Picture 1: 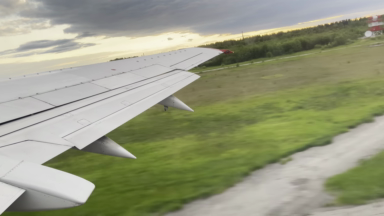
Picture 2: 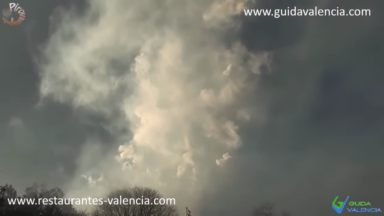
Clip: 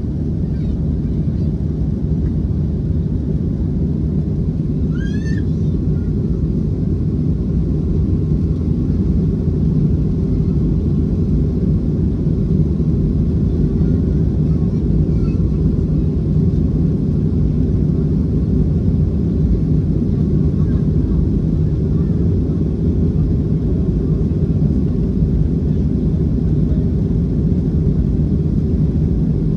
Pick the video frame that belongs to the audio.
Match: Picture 1